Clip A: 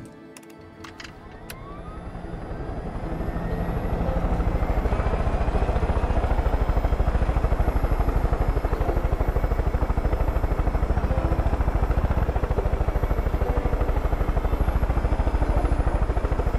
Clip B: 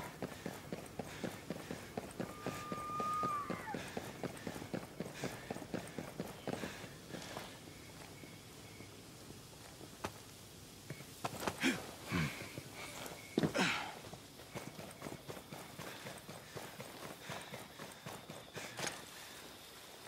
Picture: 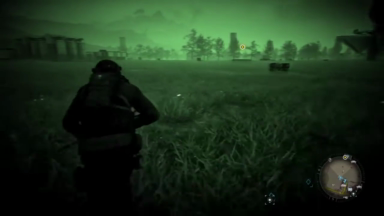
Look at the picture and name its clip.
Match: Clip B